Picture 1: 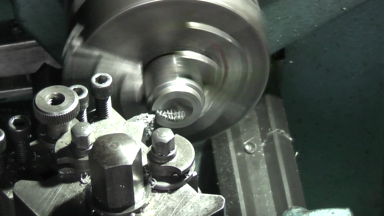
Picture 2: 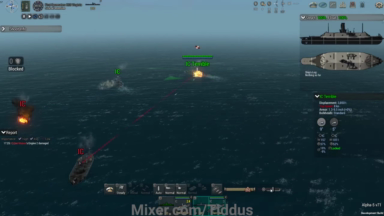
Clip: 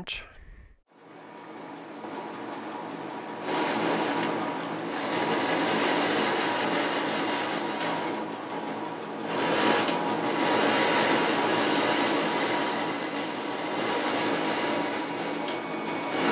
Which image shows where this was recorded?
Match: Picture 1